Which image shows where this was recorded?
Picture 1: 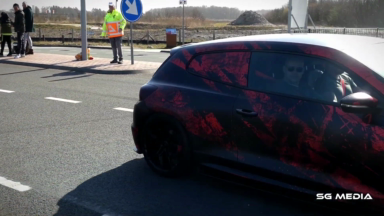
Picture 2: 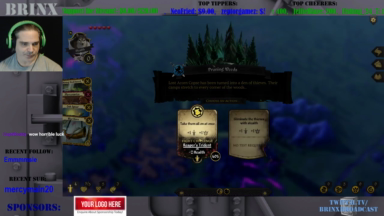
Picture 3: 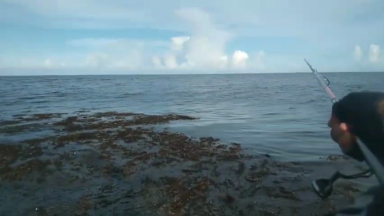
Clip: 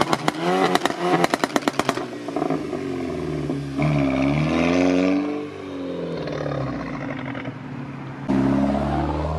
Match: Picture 1